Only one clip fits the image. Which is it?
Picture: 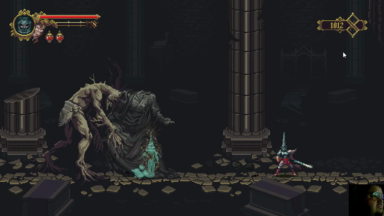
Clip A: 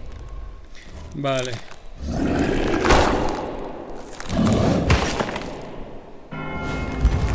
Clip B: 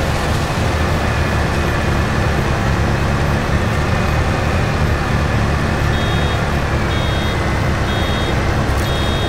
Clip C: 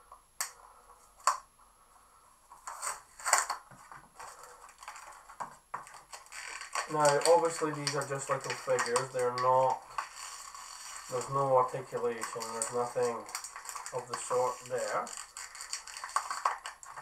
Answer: A